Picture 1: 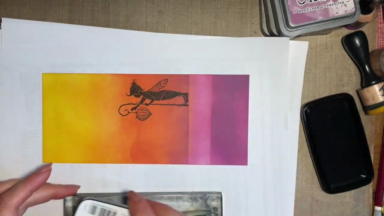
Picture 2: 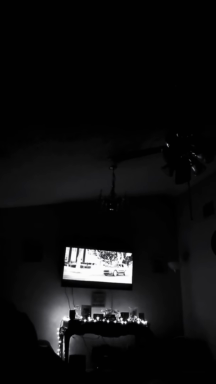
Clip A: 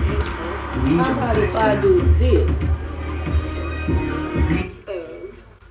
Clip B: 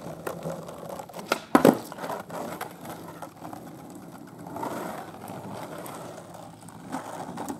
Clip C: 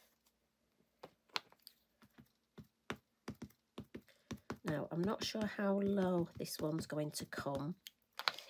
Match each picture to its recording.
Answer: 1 C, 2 A